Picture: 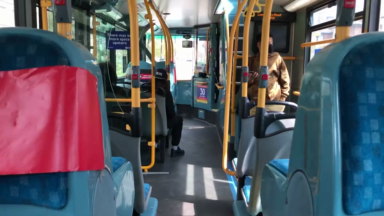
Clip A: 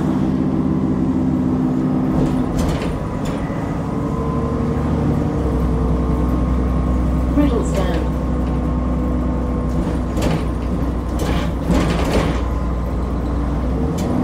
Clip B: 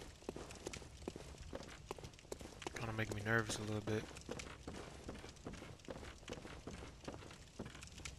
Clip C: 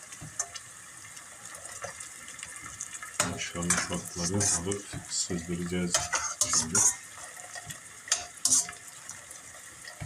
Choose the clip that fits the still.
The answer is A